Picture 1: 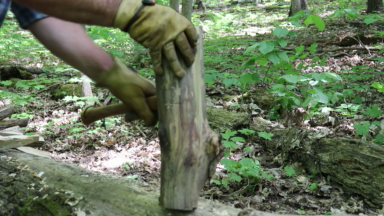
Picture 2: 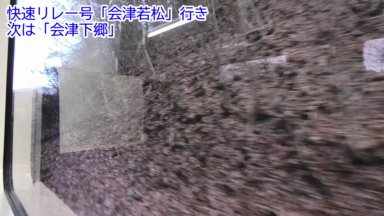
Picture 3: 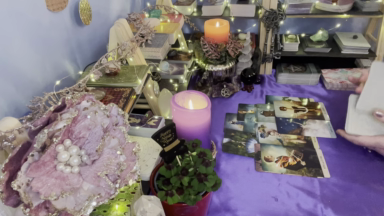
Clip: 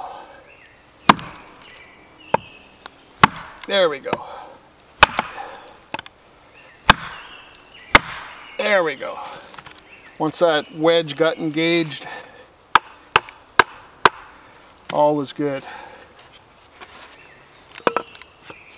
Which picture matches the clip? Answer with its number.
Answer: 1